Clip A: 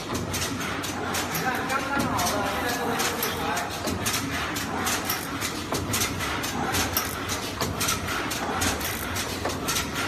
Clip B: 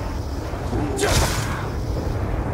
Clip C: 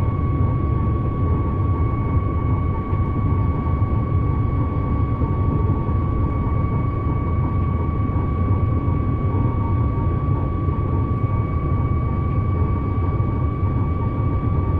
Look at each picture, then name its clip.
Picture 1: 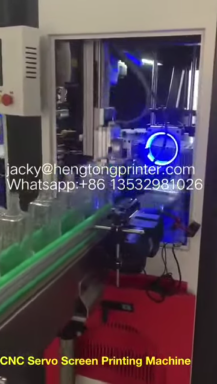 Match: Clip A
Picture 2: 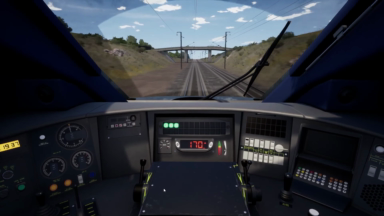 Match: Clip C